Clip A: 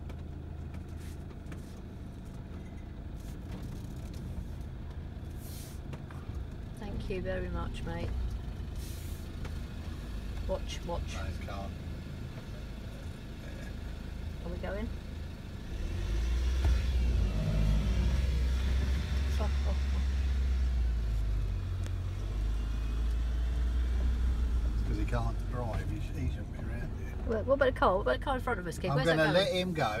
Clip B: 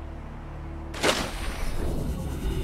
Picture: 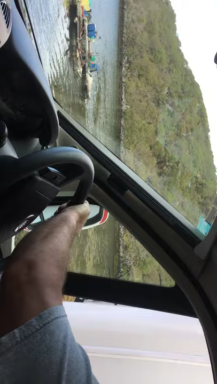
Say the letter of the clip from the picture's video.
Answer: A